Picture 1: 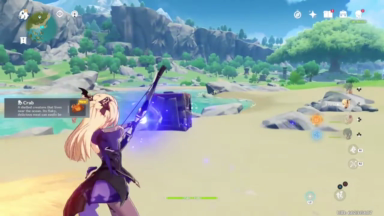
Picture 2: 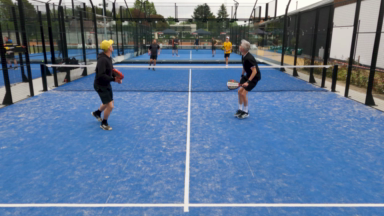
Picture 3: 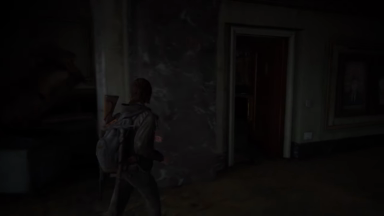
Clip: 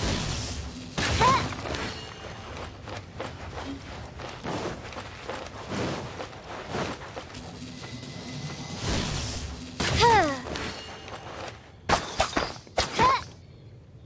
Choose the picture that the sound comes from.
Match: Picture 1